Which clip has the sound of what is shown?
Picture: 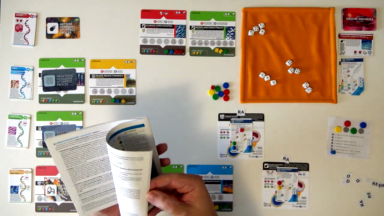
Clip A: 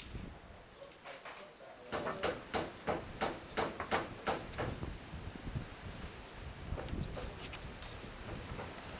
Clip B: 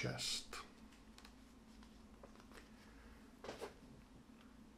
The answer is B